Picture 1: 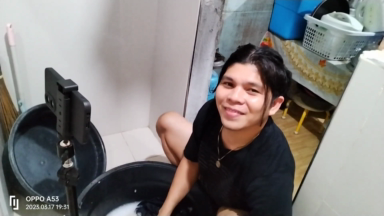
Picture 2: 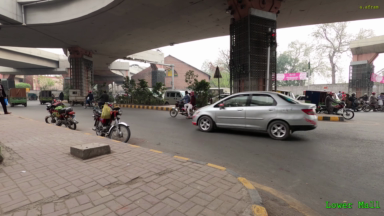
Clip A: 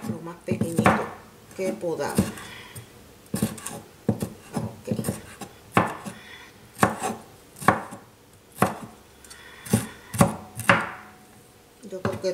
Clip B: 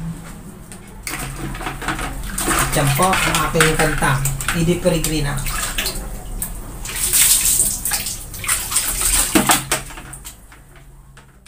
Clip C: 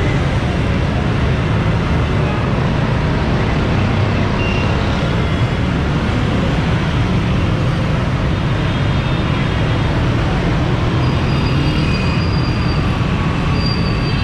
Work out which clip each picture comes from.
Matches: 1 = B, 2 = C